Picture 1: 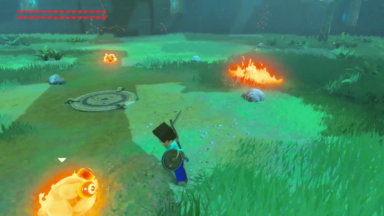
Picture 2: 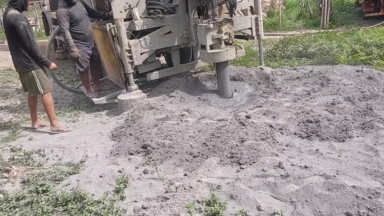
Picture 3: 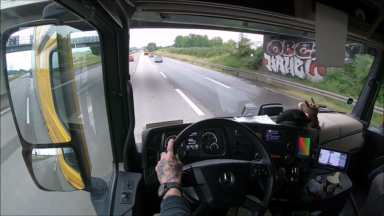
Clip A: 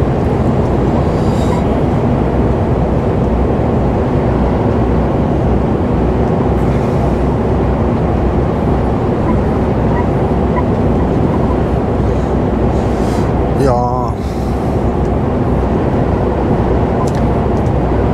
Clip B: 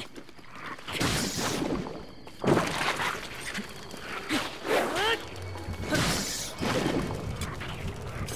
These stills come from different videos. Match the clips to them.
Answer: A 3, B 1